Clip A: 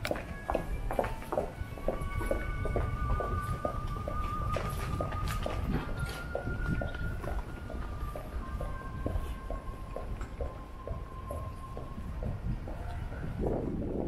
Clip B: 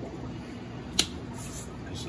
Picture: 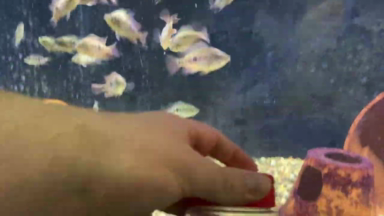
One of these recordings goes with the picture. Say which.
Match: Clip B